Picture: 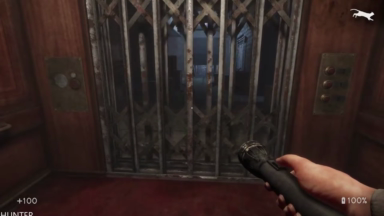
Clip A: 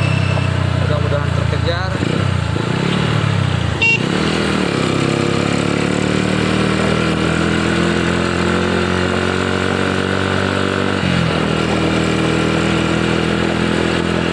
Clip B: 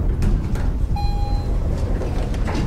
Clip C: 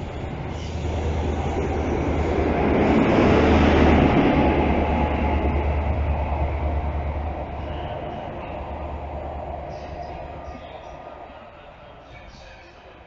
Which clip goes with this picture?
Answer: B